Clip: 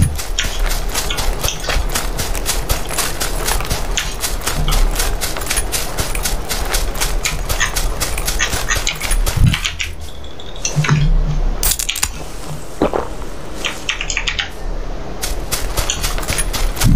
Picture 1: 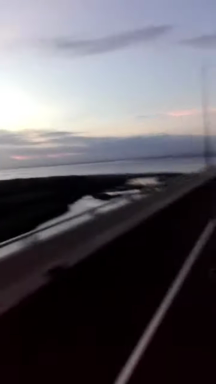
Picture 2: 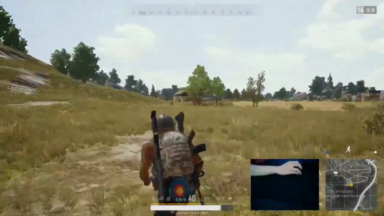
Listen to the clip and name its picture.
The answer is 2